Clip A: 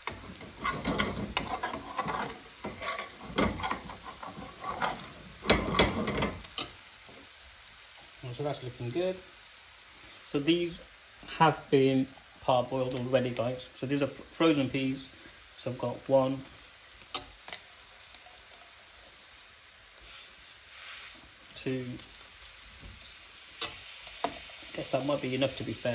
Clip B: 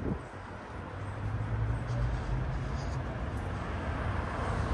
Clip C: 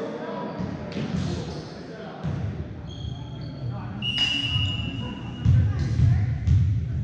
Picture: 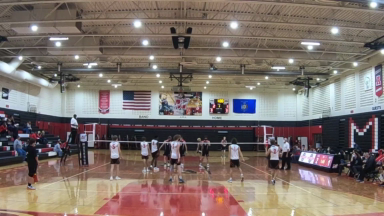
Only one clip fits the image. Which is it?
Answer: C